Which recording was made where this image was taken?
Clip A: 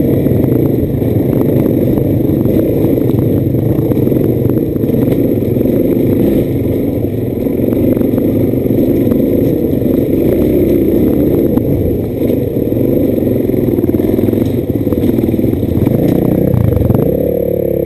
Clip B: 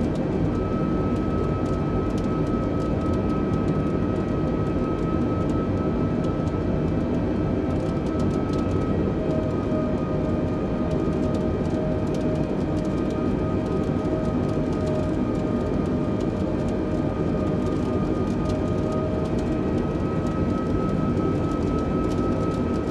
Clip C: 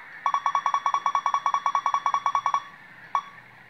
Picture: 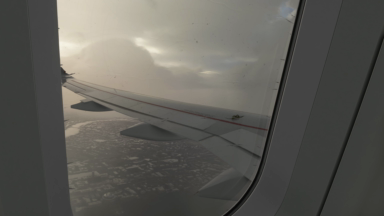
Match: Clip B